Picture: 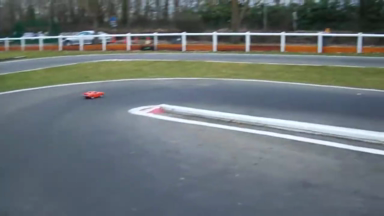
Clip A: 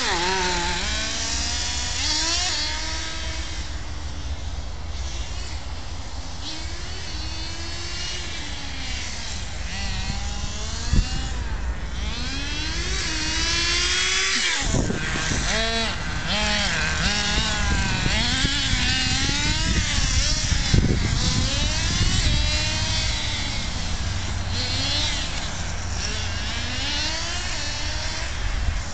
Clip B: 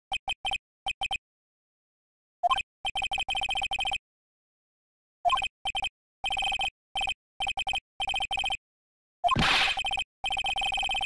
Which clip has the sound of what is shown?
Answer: A